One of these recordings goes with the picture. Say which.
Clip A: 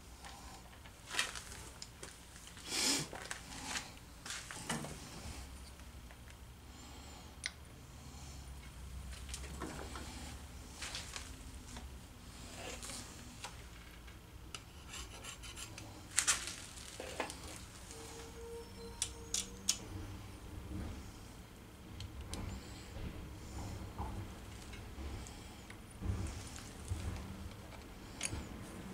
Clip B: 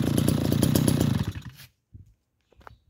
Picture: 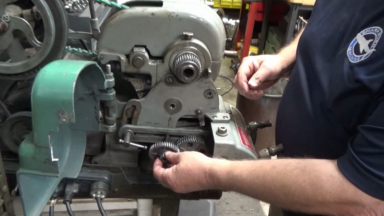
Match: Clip A